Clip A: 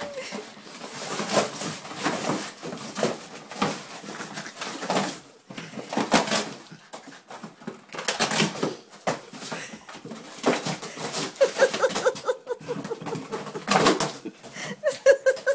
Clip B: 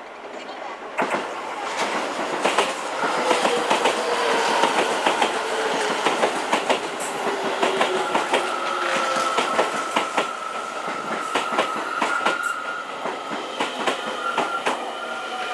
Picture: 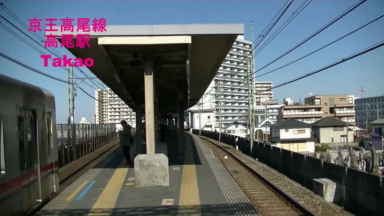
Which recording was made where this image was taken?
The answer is B